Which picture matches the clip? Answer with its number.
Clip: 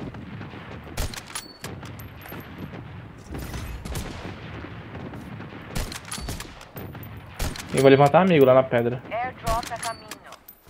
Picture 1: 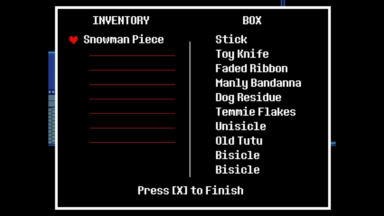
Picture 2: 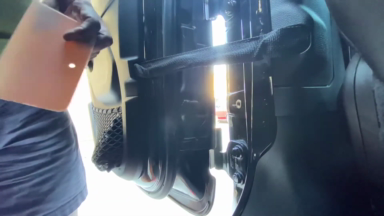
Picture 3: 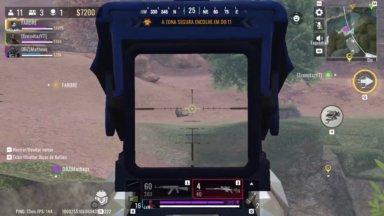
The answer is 3